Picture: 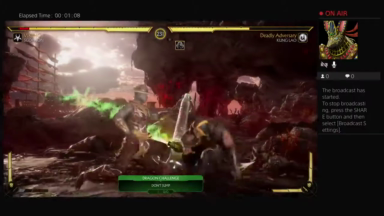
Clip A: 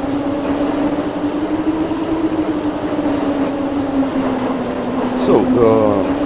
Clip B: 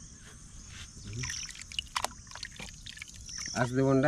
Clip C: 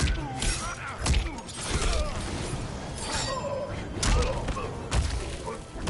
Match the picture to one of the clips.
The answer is C